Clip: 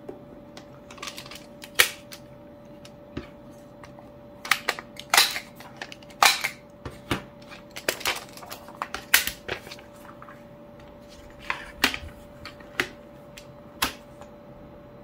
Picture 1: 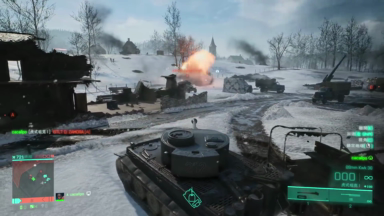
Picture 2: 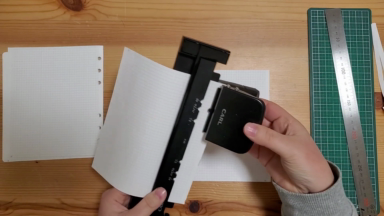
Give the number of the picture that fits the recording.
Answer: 2